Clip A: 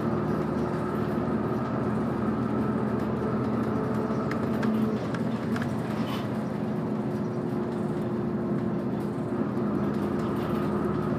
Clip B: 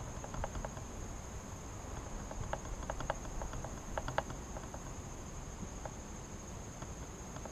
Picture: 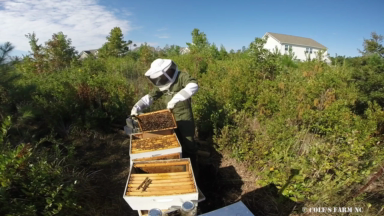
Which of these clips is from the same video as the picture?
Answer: B